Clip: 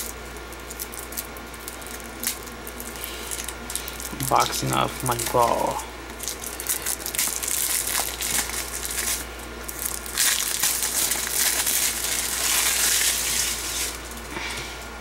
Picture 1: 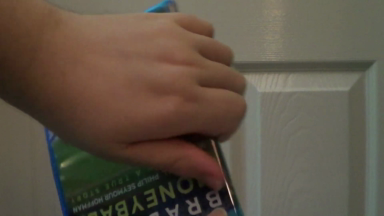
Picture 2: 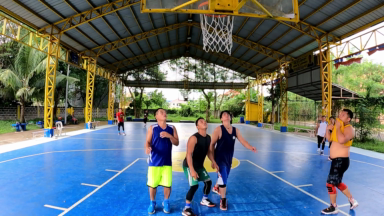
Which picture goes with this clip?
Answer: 1